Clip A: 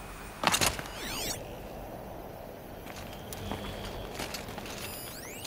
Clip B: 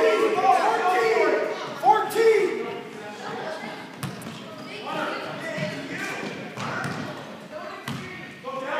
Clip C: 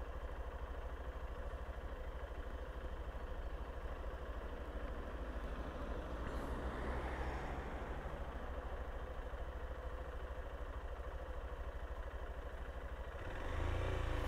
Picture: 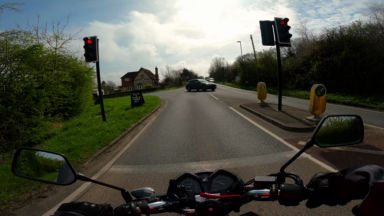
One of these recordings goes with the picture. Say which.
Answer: C